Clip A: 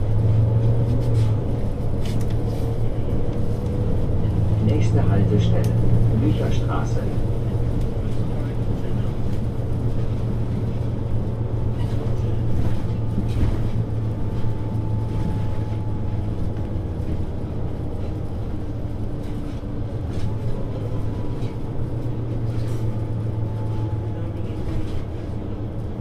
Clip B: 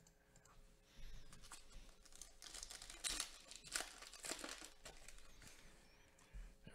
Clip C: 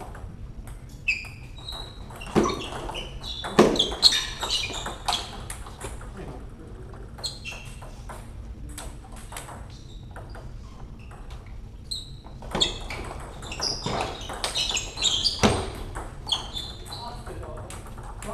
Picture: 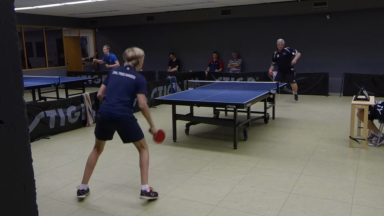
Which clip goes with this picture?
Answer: C